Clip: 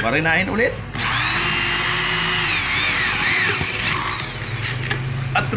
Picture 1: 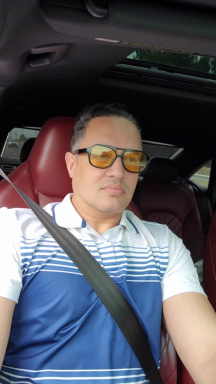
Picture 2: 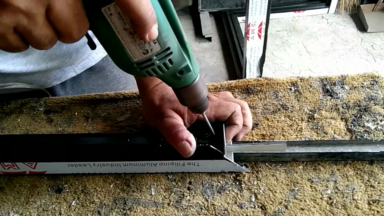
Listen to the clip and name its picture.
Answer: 2